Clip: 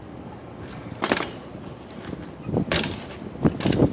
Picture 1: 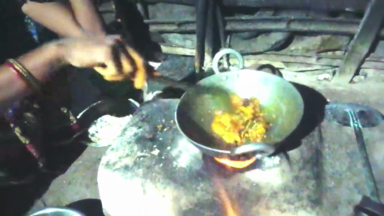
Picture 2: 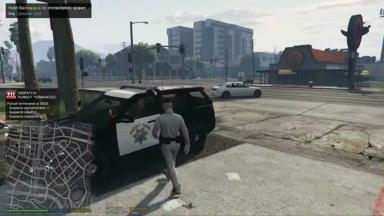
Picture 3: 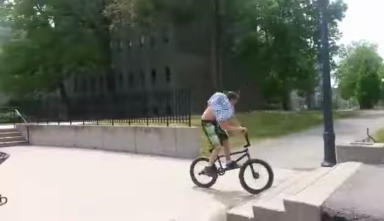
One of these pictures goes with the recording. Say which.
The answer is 3